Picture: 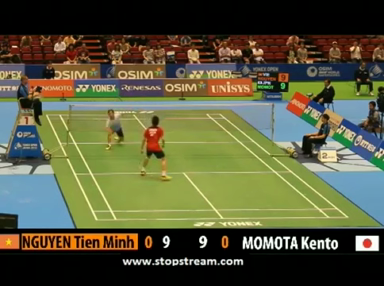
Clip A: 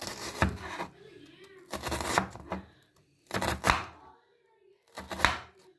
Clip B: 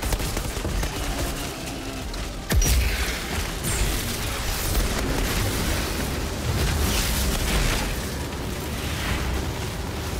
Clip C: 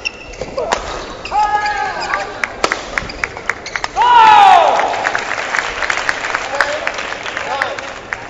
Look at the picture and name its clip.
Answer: C